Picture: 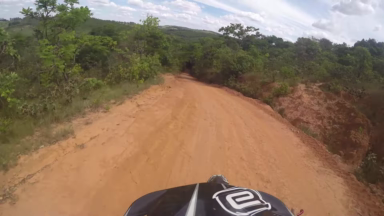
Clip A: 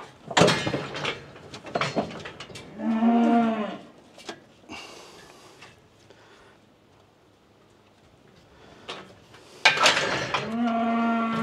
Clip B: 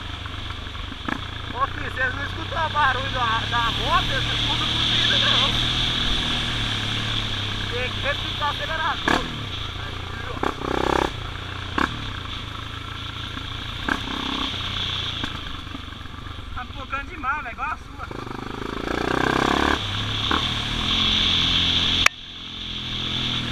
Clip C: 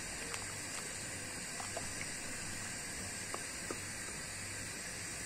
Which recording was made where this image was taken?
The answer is B